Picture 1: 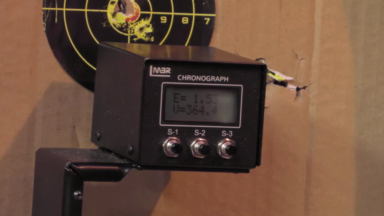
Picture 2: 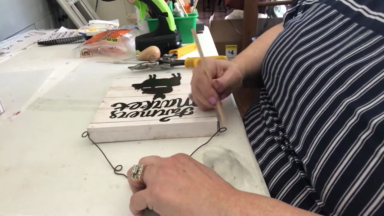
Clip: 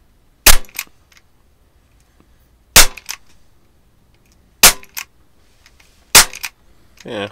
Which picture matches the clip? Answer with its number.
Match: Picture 1